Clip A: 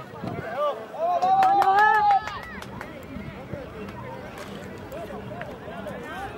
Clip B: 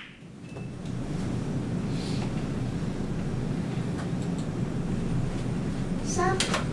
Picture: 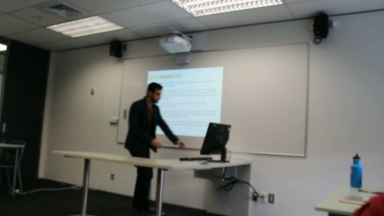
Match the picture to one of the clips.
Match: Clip B